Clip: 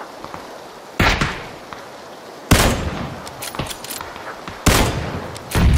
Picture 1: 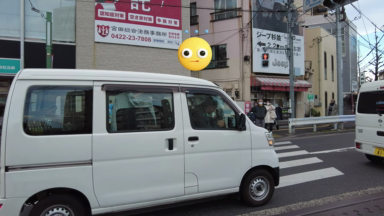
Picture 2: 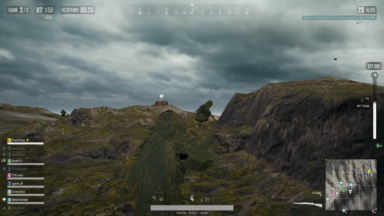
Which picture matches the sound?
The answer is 2